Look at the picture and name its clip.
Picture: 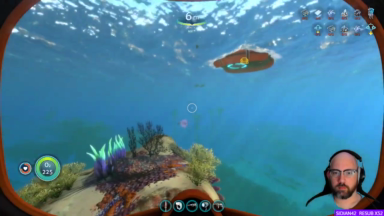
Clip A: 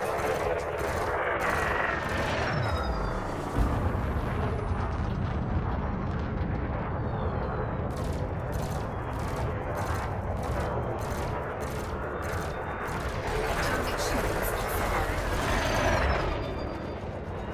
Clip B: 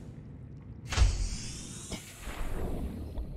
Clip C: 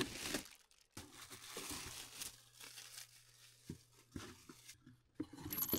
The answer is B